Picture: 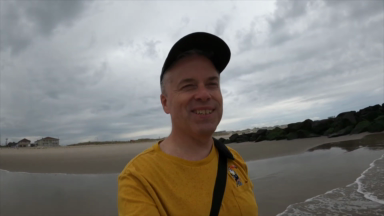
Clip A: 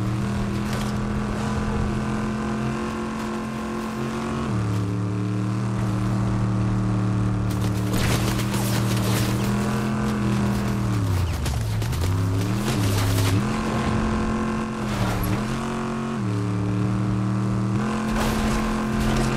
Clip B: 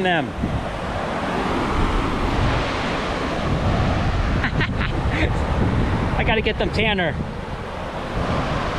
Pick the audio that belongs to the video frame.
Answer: B